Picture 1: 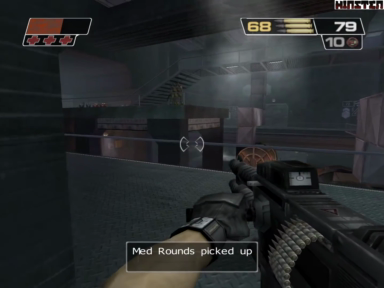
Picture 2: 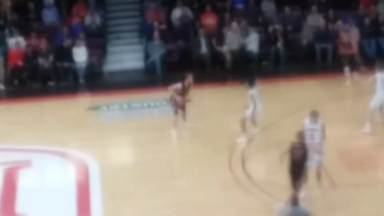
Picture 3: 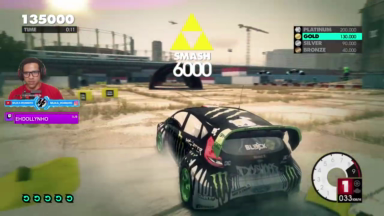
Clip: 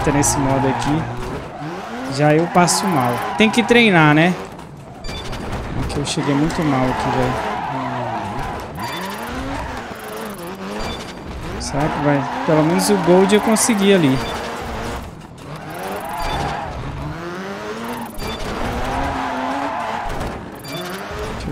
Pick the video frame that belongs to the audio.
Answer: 3